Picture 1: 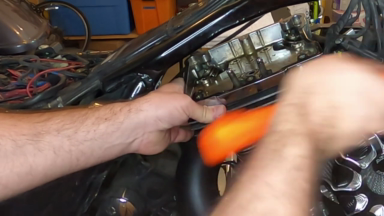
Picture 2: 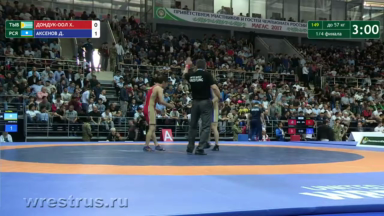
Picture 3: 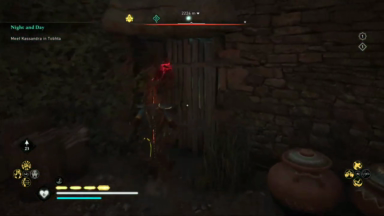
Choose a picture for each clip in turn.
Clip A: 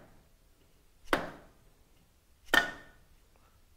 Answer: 1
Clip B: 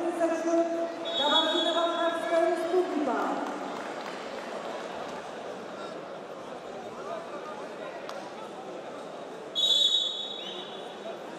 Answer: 2